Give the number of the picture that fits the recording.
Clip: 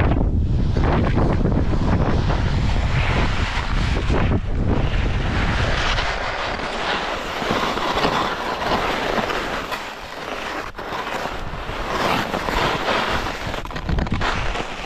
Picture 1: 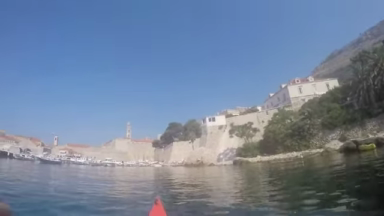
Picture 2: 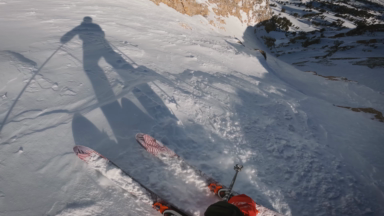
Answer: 2